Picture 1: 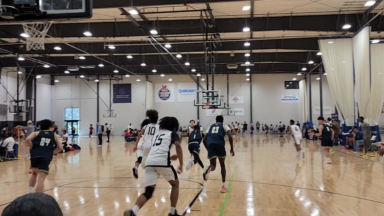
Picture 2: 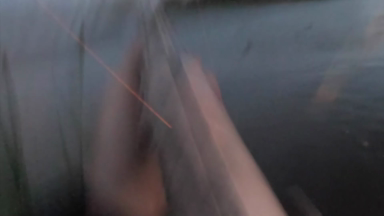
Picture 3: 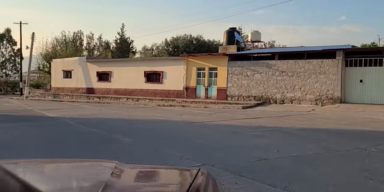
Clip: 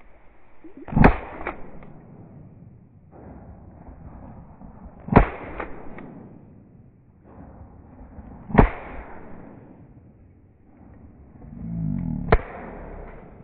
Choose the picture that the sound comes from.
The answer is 2